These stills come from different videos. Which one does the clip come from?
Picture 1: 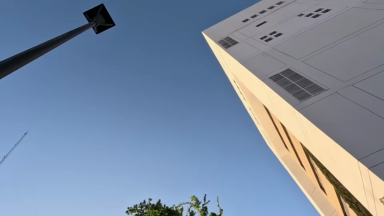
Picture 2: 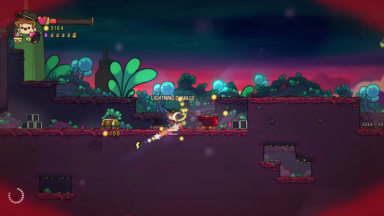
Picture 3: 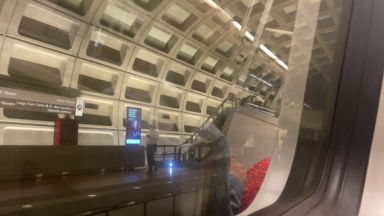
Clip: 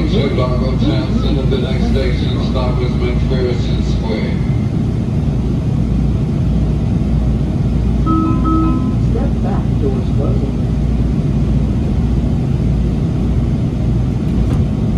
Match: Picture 3